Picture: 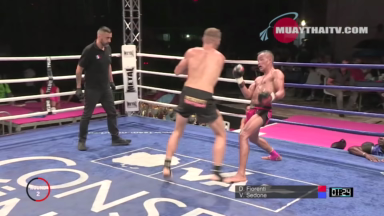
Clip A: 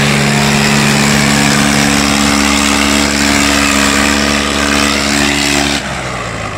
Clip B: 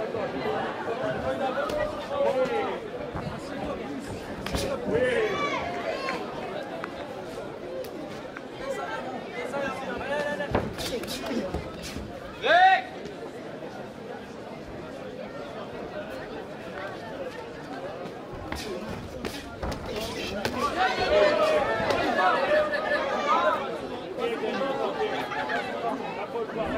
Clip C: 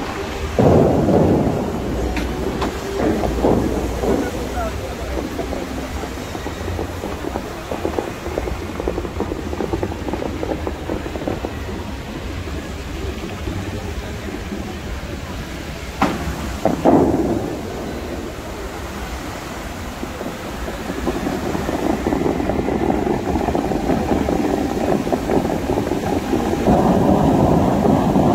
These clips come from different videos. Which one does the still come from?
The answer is B